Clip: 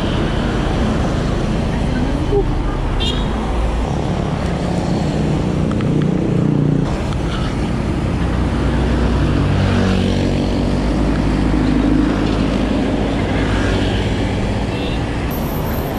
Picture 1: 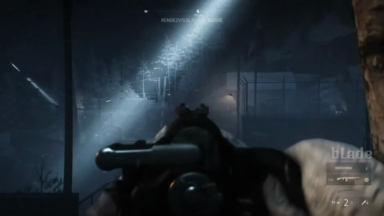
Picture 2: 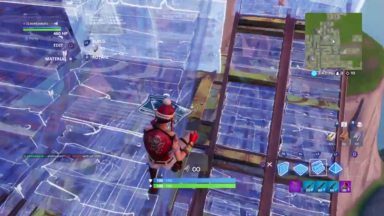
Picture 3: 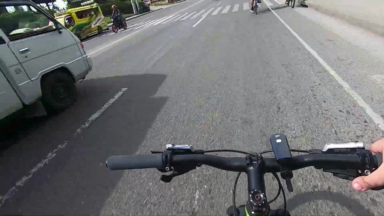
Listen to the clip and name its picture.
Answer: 3